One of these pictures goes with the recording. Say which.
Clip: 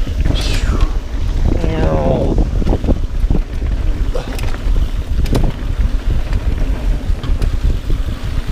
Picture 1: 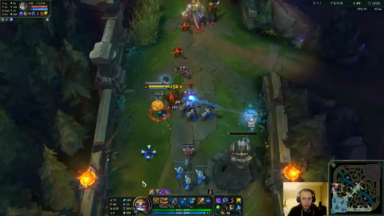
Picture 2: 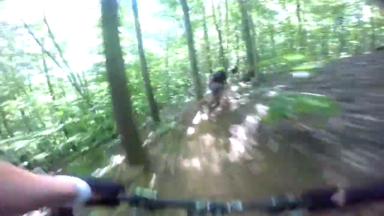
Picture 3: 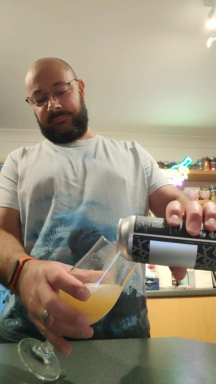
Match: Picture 2